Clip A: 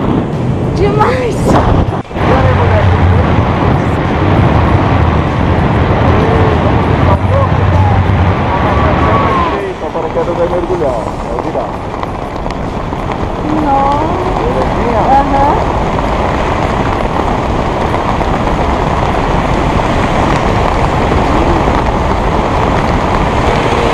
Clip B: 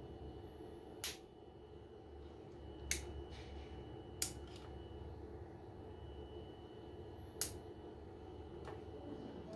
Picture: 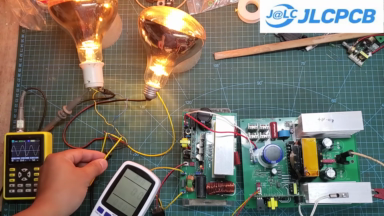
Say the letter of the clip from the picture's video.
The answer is B